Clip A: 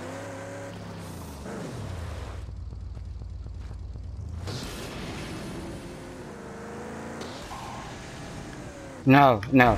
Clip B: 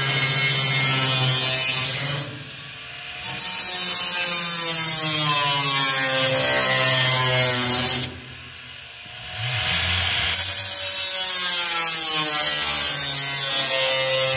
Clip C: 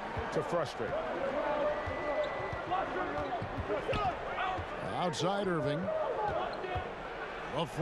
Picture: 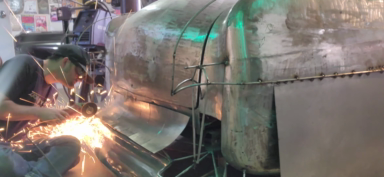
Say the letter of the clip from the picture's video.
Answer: B